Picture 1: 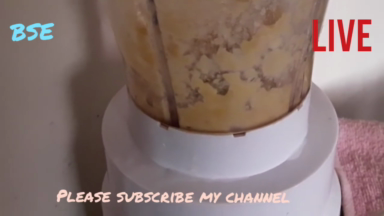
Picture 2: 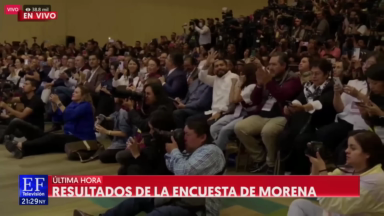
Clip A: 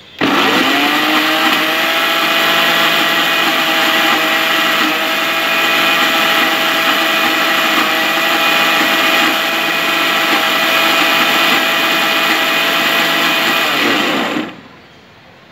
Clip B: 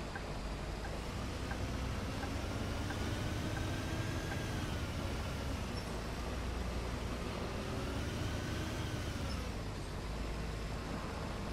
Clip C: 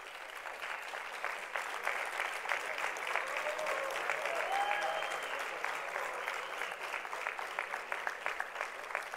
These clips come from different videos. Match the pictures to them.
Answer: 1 A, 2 C